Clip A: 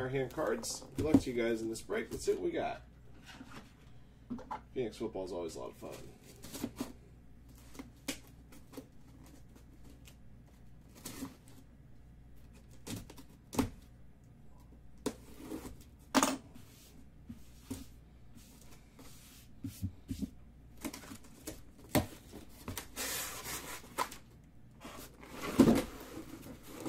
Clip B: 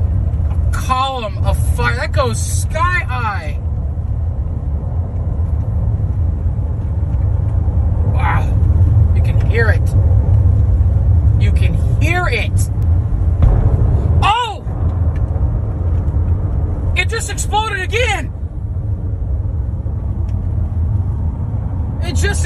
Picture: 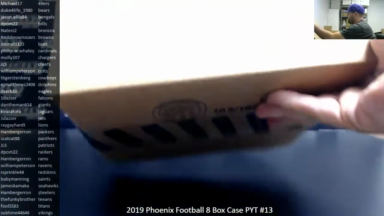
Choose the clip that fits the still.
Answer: A